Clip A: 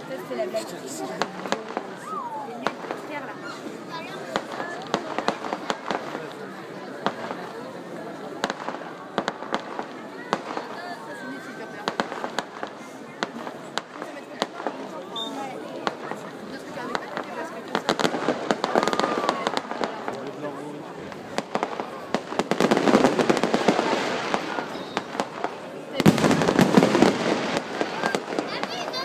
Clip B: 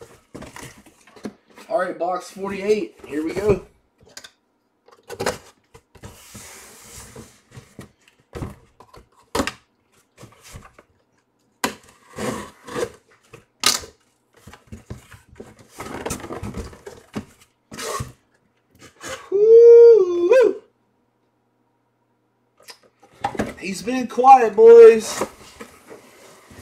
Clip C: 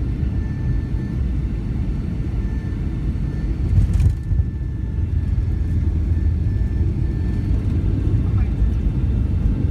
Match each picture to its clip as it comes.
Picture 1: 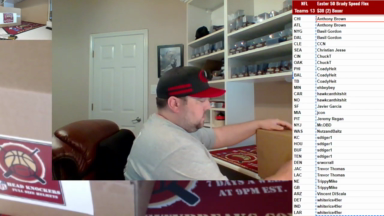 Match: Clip B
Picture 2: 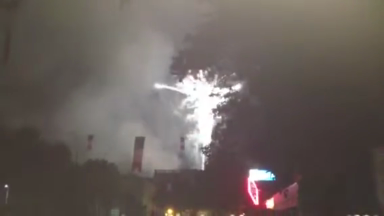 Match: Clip A